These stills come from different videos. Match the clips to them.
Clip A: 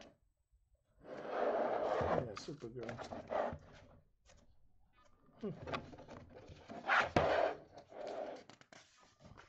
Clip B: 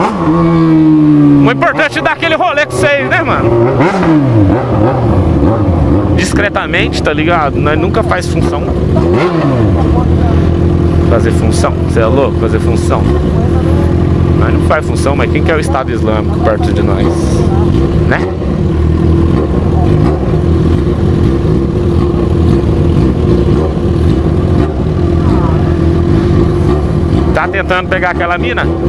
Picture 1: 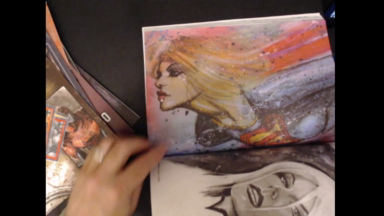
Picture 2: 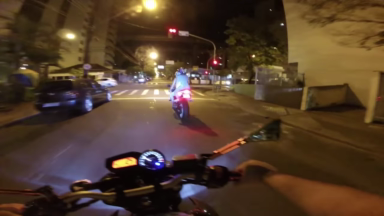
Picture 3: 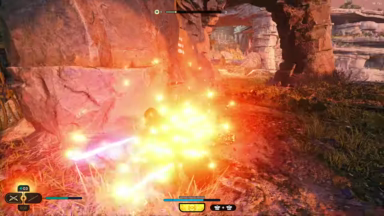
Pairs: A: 1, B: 2